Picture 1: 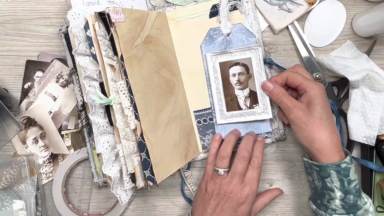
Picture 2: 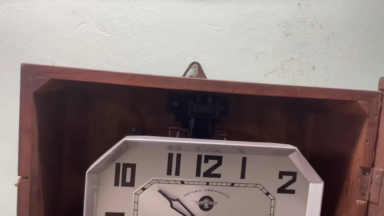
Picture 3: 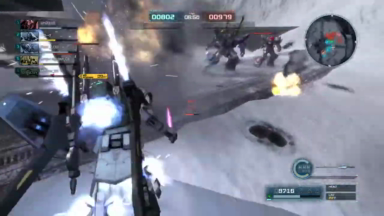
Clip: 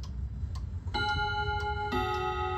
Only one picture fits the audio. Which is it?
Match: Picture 2